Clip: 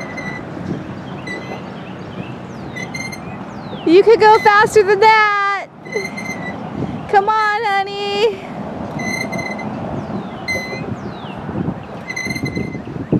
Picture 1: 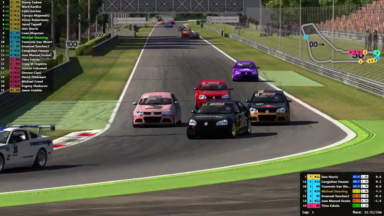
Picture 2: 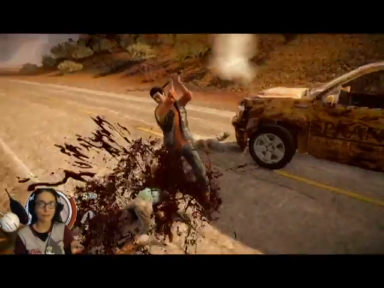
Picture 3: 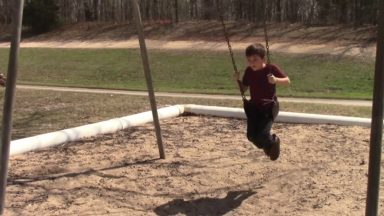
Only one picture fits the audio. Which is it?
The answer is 3